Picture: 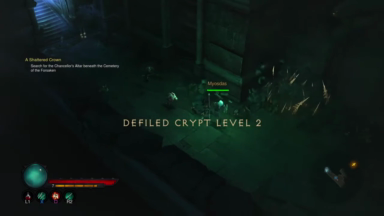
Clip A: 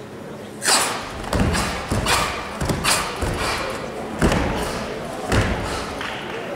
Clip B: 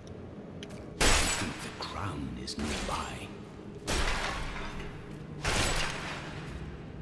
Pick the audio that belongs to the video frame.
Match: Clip B